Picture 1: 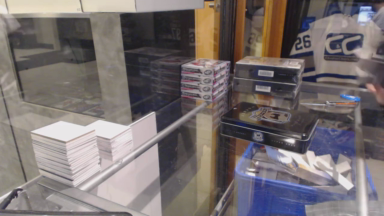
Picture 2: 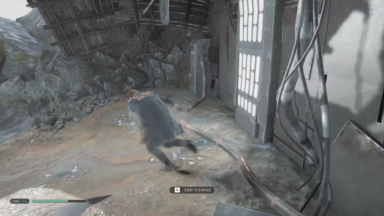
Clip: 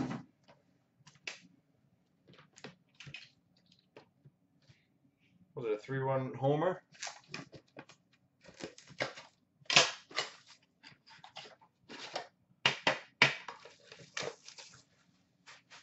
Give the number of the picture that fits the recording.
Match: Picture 1